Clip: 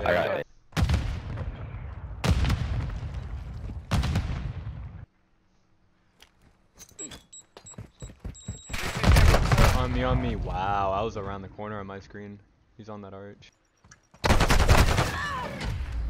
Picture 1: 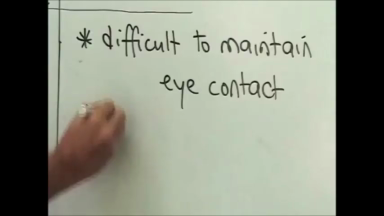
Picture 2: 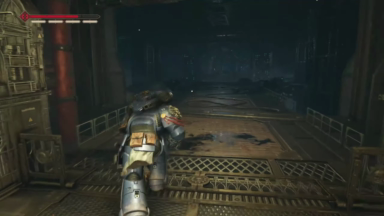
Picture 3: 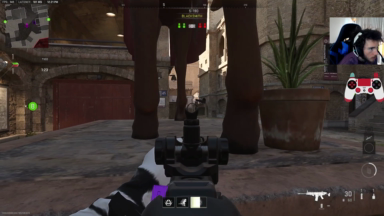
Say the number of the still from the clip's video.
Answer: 3